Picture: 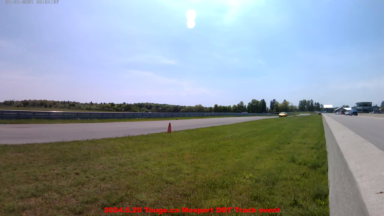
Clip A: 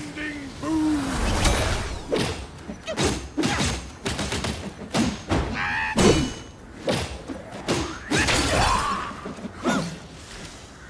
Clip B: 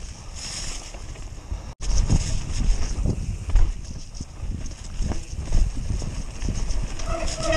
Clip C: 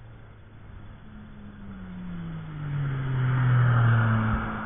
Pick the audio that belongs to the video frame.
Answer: C